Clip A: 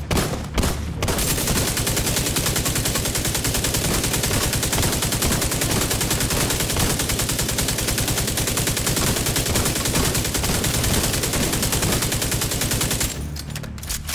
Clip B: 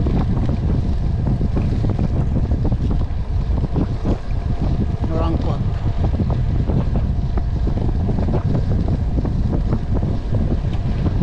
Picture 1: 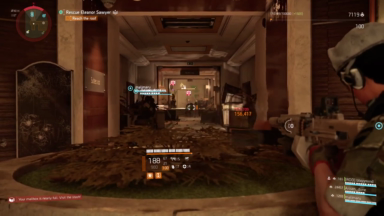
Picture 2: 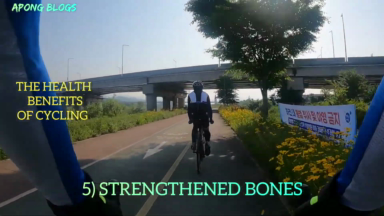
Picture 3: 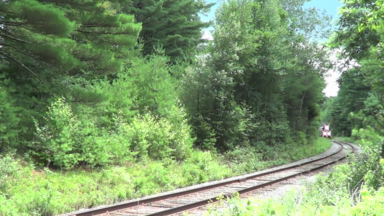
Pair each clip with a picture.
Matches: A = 1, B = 2